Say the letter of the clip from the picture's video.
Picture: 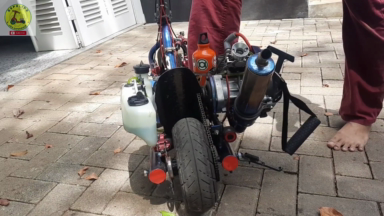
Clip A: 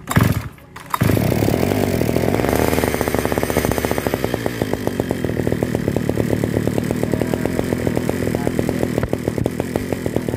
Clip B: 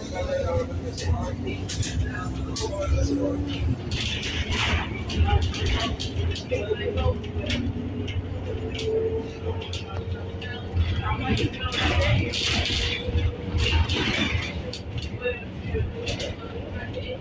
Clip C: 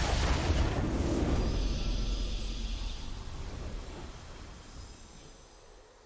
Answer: A